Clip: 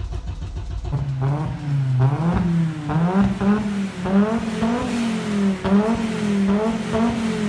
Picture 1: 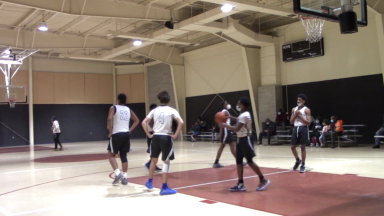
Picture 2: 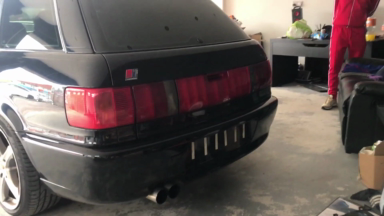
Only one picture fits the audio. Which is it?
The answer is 2